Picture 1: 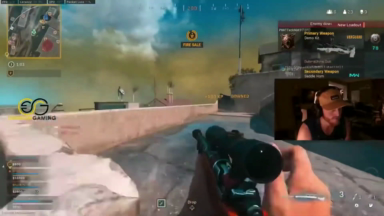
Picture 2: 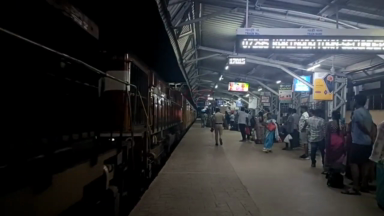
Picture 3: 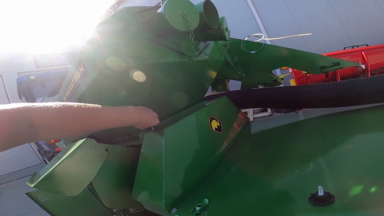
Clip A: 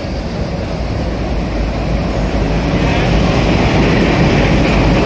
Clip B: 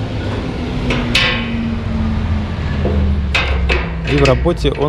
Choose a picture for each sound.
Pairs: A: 2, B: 3